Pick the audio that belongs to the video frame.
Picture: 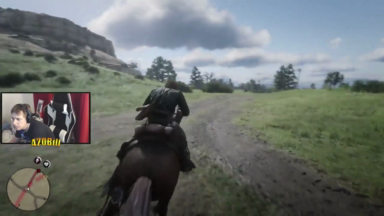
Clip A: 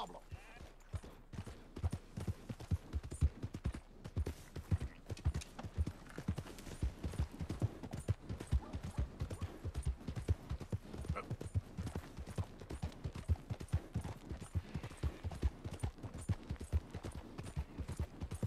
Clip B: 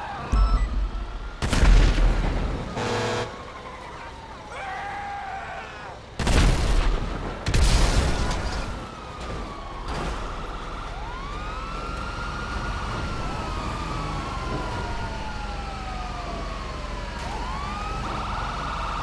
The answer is A